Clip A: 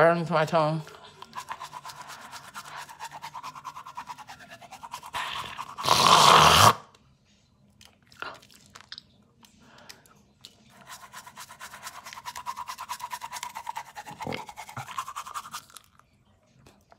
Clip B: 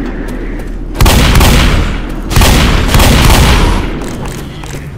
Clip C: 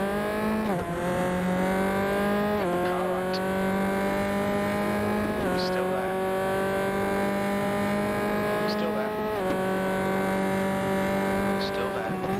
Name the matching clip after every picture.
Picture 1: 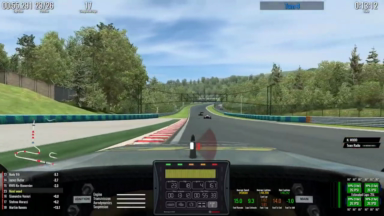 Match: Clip C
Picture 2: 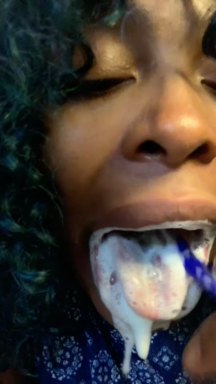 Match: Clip A